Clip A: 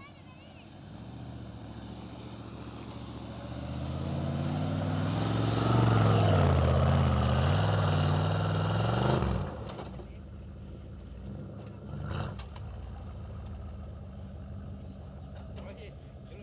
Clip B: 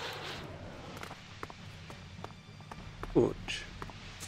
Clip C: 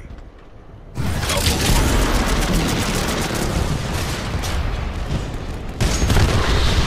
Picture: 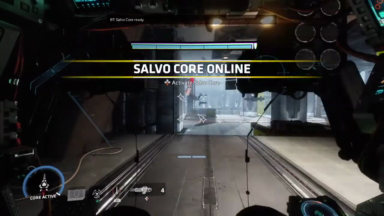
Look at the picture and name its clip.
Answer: C